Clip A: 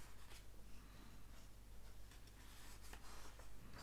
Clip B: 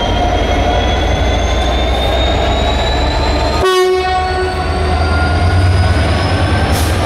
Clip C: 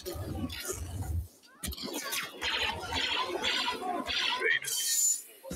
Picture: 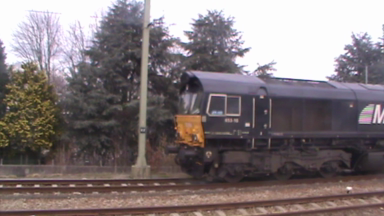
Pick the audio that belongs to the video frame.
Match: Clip B